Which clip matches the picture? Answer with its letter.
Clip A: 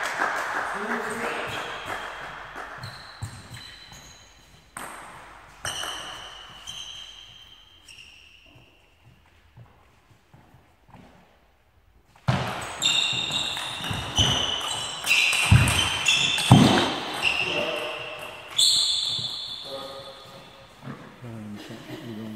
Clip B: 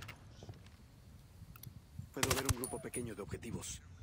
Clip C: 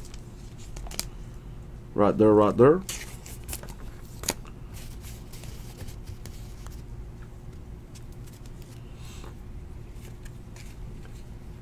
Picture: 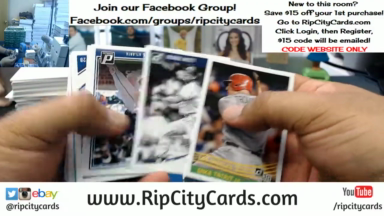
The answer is C